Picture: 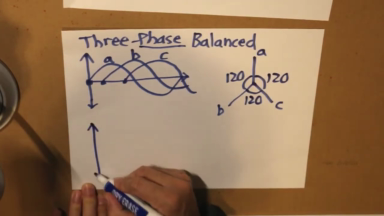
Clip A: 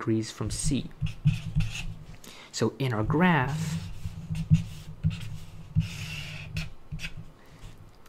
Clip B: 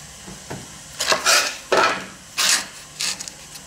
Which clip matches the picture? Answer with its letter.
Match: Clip A